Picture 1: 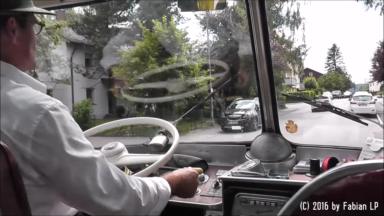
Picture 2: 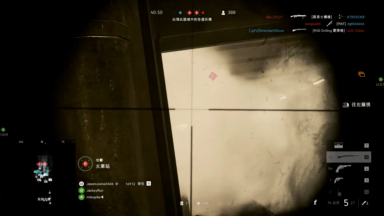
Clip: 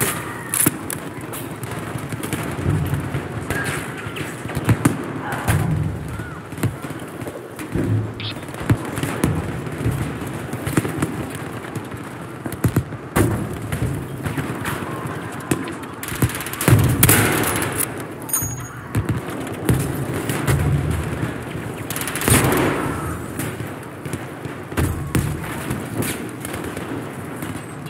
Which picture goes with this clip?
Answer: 2